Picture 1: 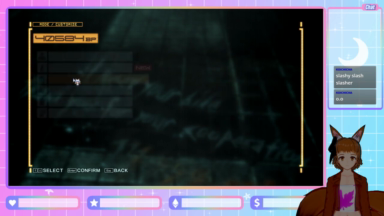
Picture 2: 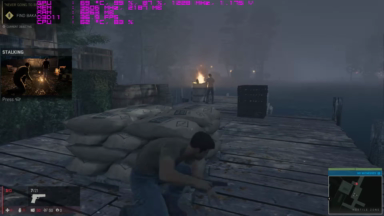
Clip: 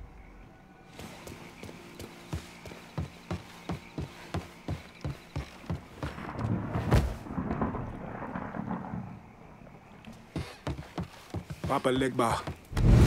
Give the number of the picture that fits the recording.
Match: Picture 2